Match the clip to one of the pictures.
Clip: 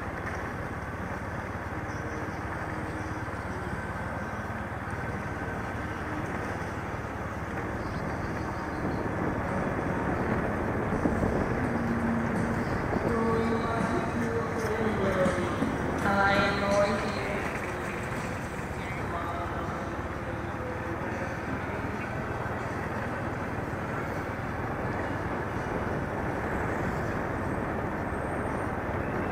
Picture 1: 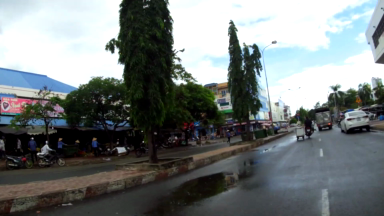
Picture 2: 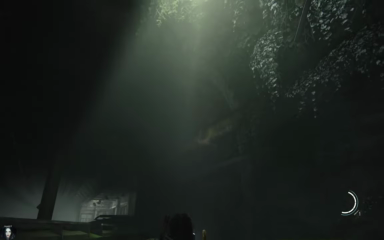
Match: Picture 1